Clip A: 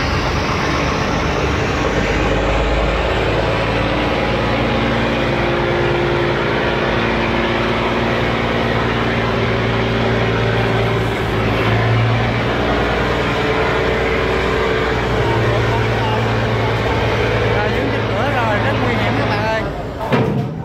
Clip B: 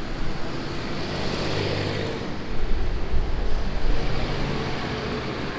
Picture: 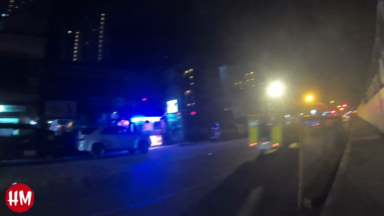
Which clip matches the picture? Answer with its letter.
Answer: B